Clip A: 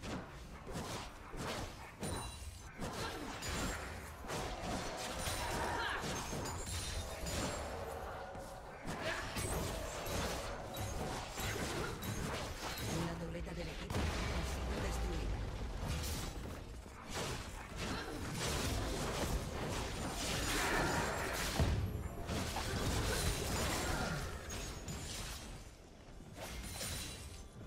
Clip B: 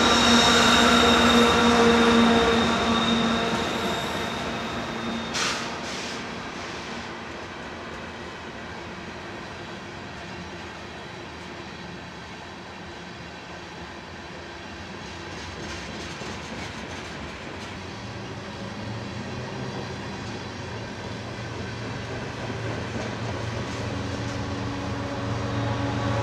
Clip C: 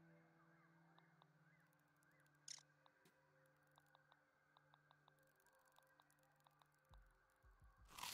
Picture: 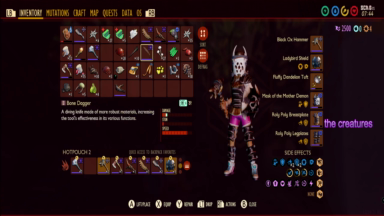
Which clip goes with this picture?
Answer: C